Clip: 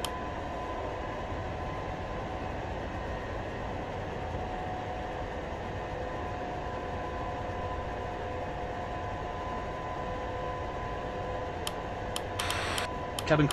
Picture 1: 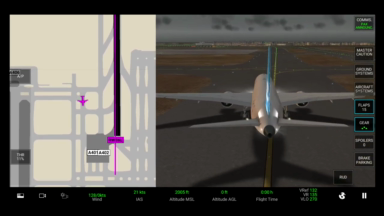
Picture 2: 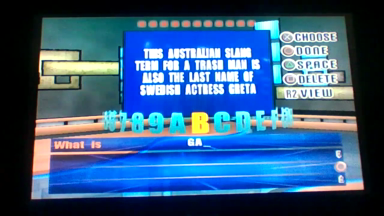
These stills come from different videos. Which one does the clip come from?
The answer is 1